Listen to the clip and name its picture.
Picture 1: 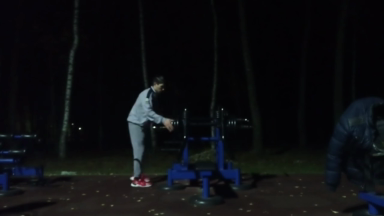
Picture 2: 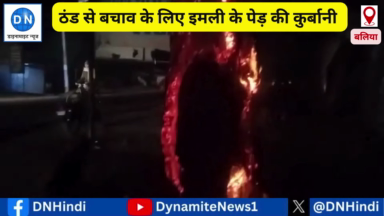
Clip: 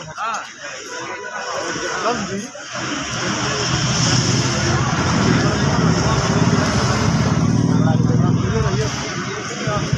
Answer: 2